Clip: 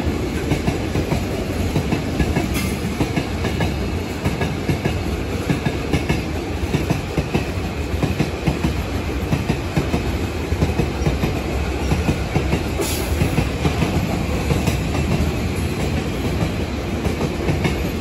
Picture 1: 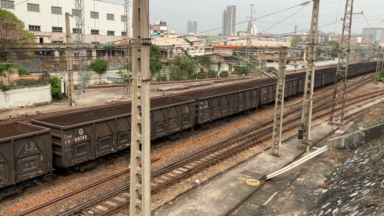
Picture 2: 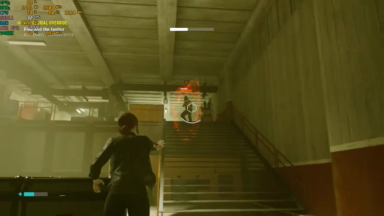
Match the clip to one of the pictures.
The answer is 1